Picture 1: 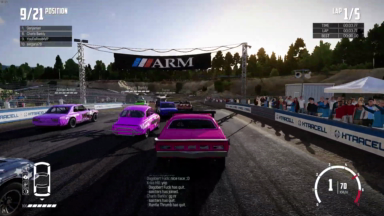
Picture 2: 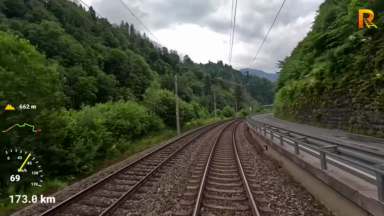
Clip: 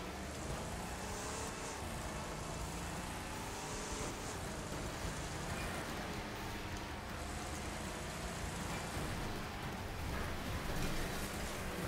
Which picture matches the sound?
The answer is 1